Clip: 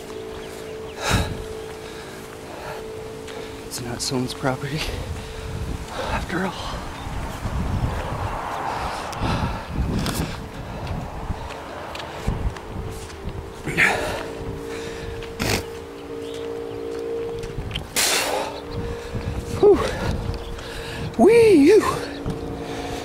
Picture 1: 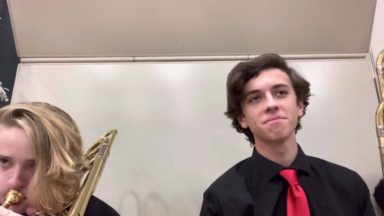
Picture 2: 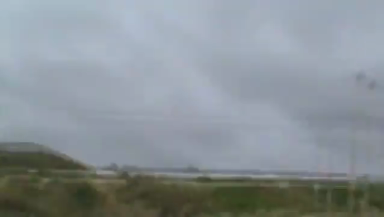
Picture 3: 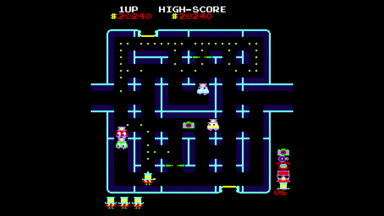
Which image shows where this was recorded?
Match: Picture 2